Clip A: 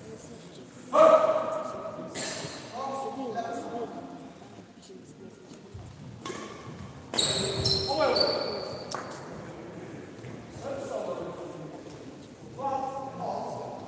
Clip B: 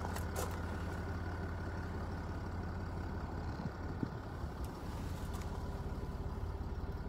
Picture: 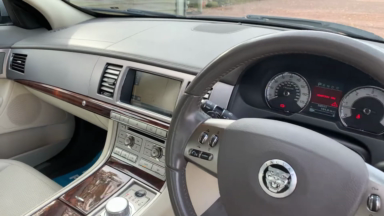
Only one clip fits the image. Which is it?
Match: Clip B